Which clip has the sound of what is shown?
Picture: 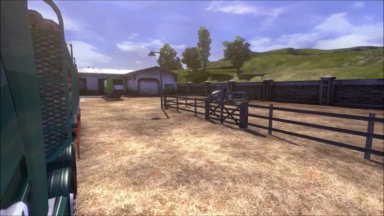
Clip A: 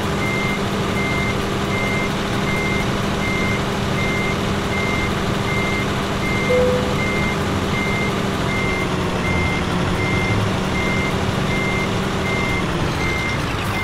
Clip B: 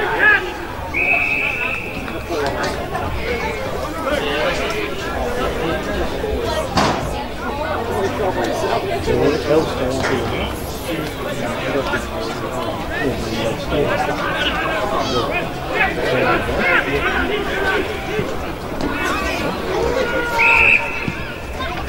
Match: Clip A